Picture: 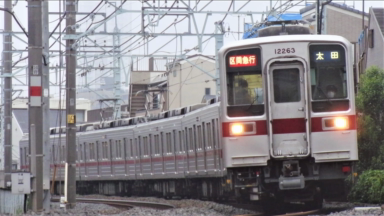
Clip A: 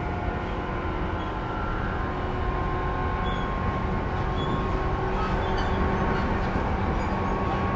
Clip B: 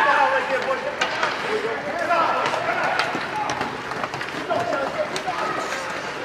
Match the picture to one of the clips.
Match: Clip A